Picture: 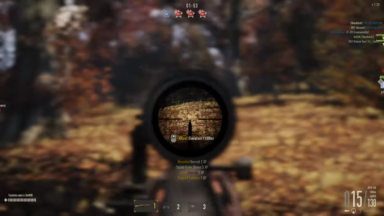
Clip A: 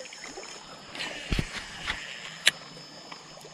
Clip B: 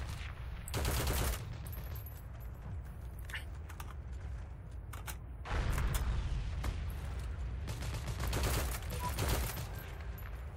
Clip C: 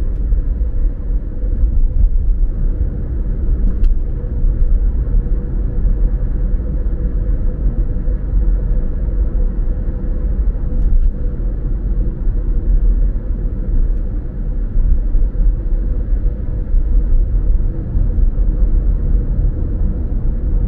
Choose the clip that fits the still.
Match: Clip B